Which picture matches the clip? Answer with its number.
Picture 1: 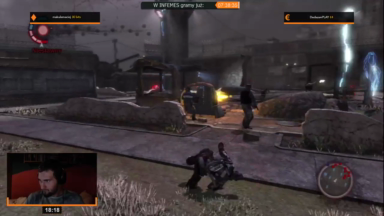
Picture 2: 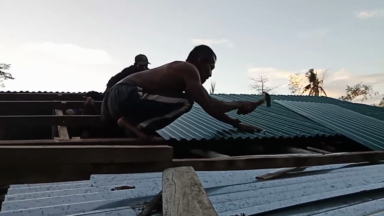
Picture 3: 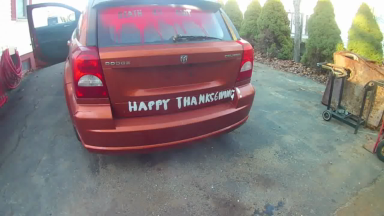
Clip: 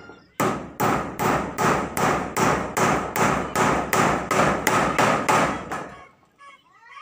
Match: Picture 2